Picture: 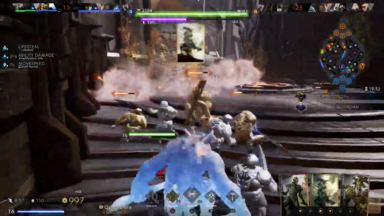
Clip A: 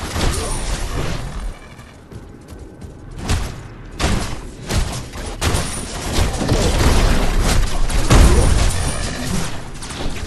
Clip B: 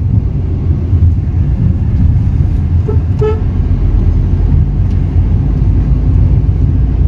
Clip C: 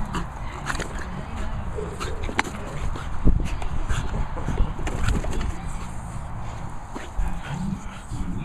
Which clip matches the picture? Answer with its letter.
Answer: A